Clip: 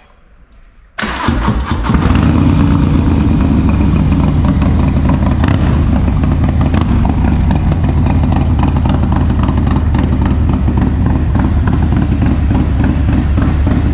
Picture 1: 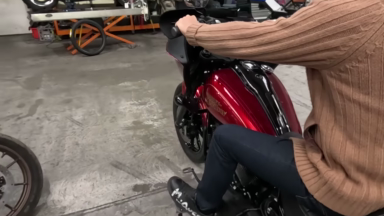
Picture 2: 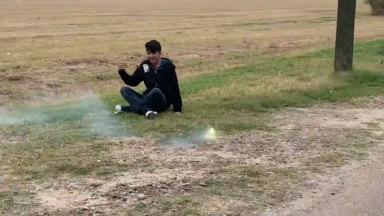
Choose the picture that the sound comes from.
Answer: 1